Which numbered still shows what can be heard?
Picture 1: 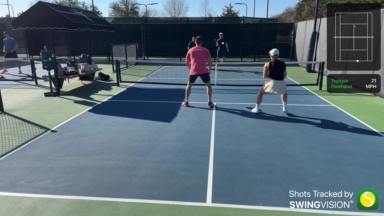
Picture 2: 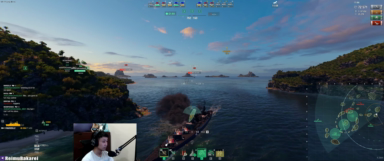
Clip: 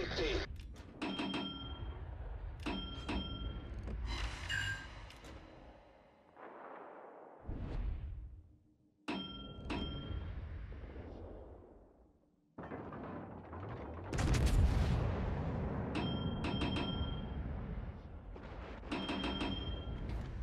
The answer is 2